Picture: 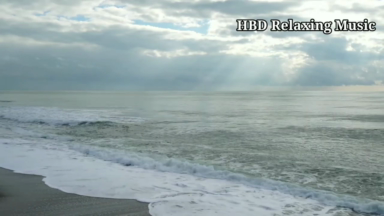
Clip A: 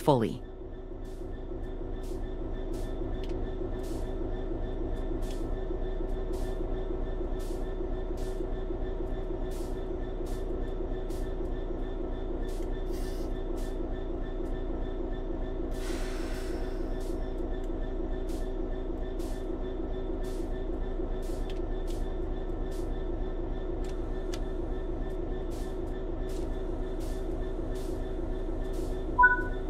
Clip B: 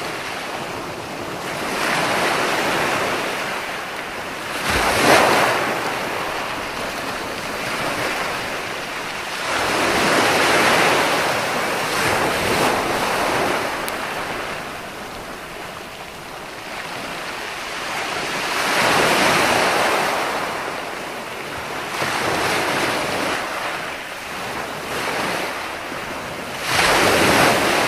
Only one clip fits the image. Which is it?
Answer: B